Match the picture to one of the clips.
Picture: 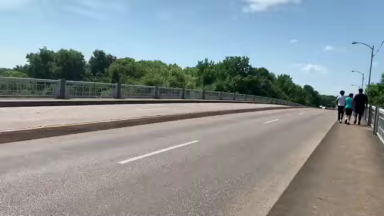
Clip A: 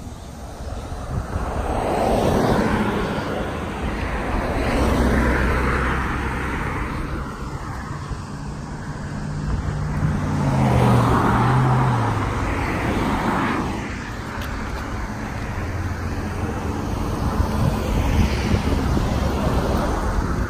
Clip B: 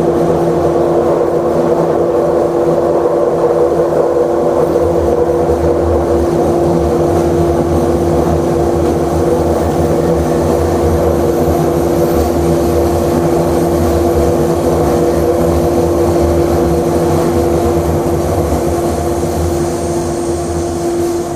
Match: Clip A